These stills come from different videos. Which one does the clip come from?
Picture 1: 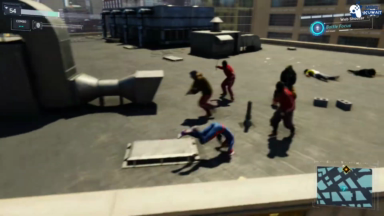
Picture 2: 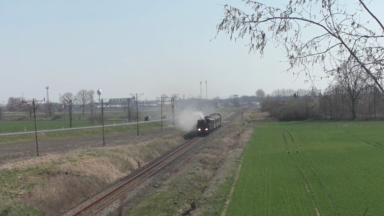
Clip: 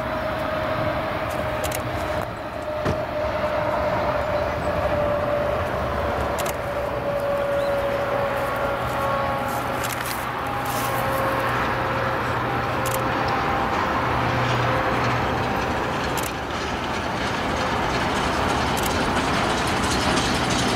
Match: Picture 2